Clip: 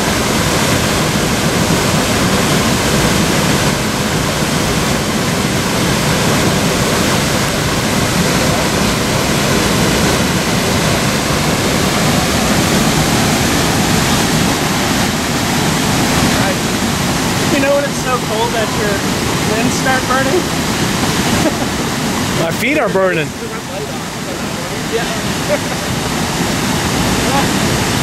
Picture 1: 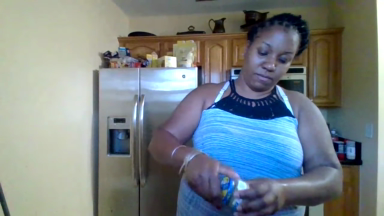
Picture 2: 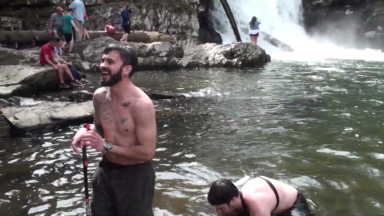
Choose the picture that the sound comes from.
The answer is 2